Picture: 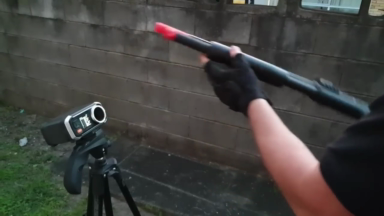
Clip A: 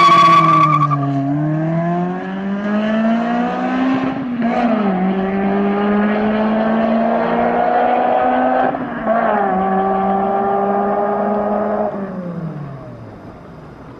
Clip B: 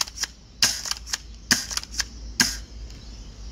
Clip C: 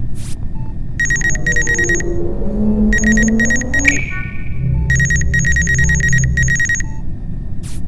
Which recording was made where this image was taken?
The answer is B